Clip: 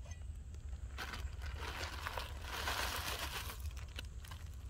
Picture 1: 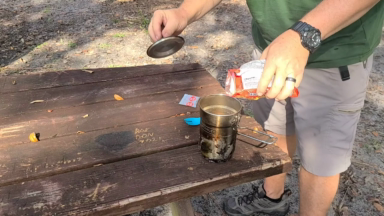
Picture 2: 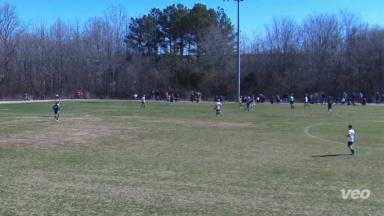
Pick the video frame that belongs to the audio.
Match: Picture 1